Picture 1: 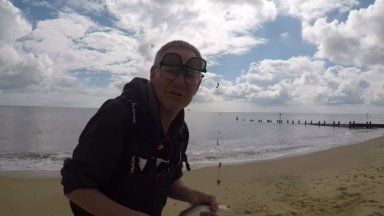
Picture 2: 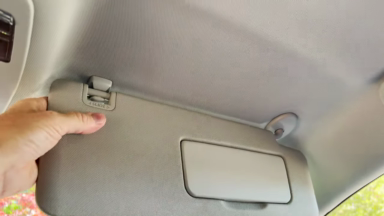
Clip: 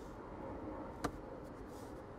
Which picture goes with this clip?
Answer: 2